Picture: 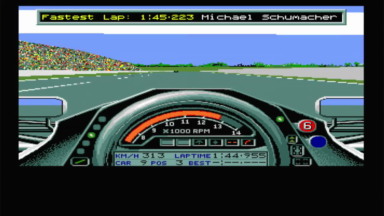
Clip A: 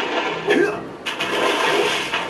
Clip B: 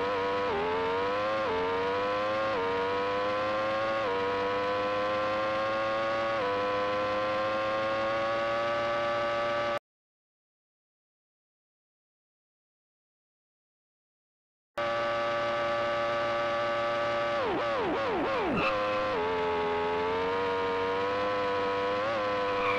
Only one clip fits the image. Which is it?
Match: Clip B